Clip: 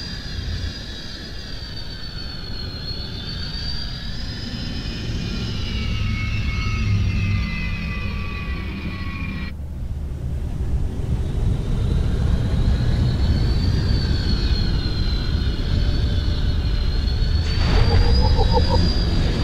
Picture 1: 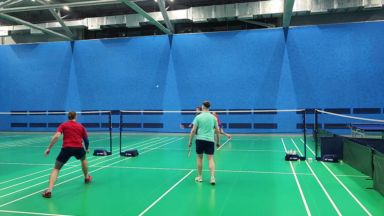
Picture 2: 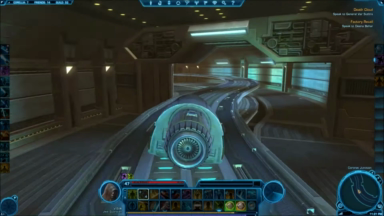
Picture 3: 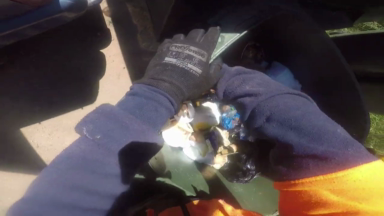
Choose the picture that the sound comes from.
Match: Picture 2